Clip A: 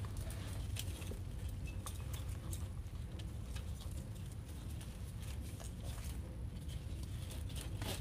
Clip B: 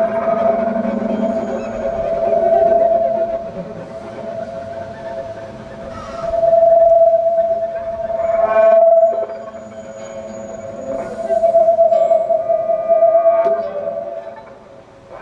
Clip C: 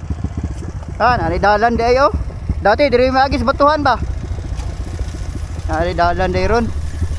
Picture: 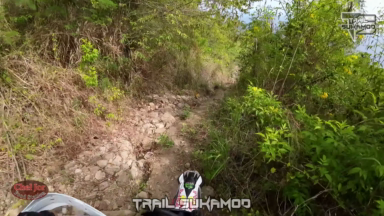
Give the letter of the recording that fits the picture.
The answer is C